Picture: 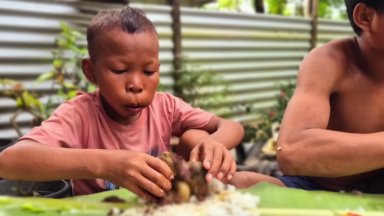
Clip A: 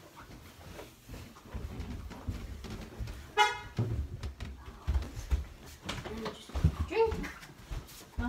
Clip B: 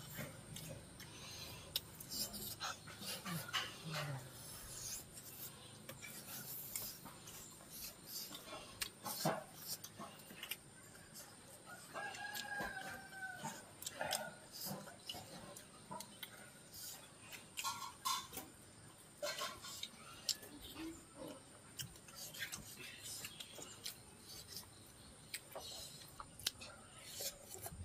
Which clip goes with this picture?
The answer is B